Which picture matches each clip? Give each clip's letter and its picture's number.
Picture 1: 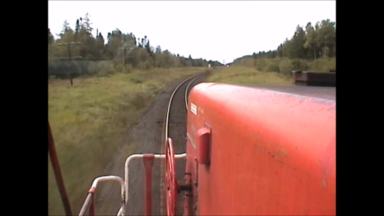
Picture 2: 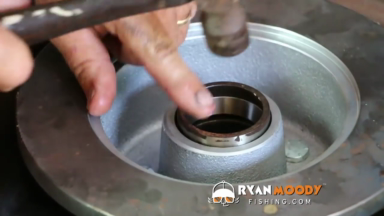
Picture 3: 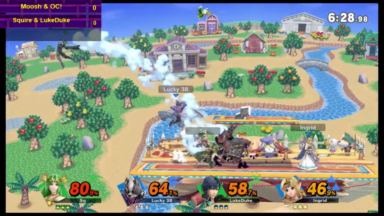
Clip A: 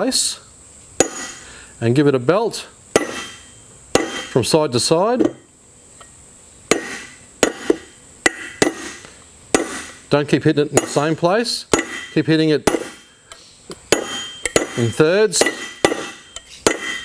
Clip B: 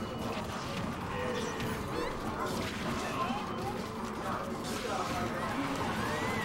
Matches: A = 2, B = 3